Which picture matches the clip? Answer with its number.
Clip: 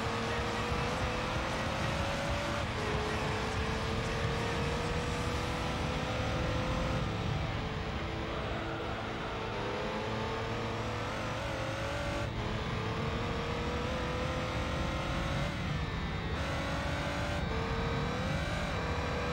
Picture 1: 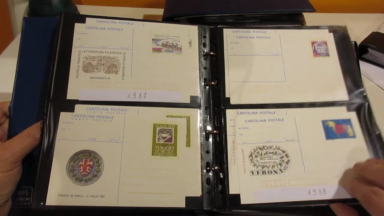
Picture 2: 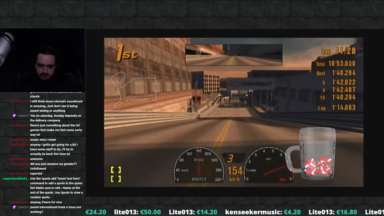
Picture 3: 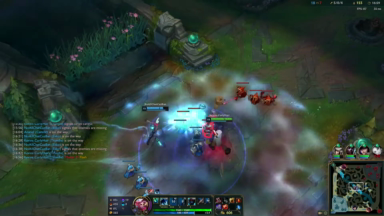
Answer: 2